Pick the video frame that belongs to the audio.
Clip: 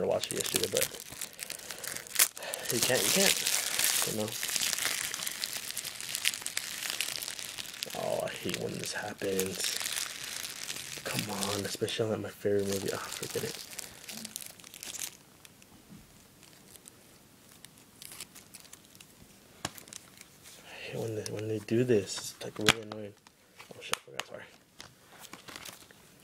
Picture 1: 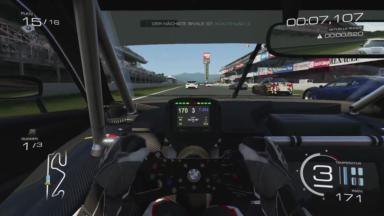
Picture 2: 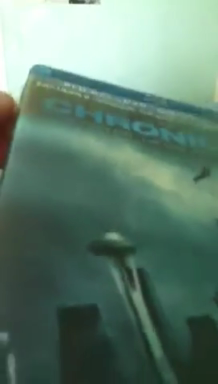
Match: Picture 2